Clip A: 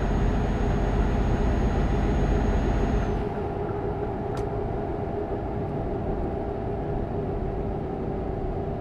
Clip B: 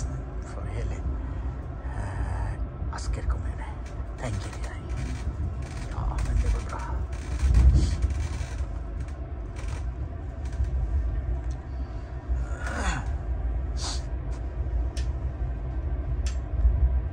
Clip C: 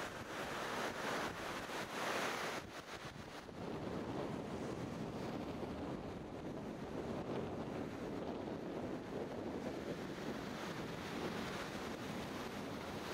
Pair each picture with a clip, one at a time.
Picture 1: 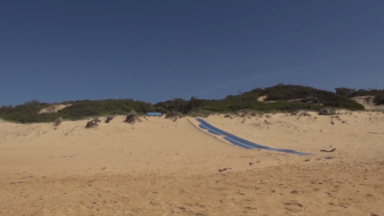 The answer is C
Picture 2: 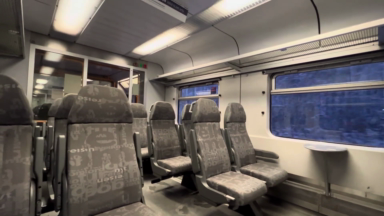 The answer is B